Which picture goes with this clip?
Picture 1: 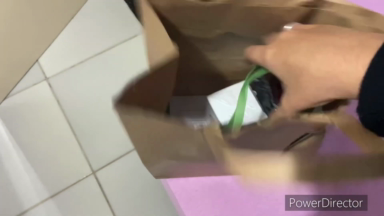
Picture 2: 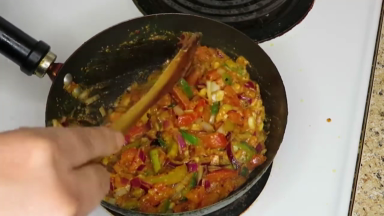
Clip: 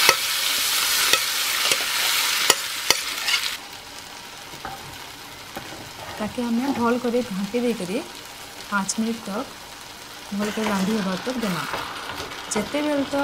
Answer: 2